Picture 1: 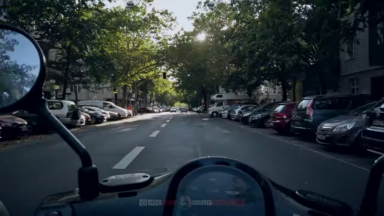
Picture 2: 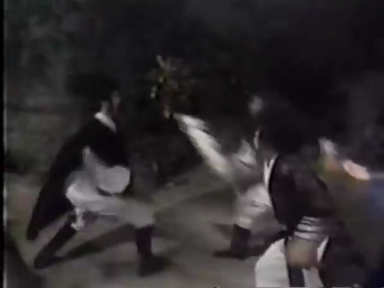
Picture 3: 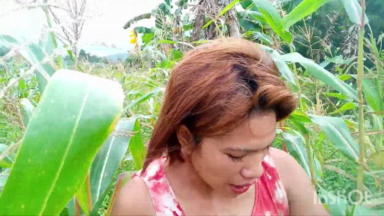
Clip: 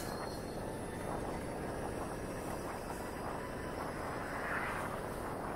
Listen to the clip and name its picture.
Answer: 1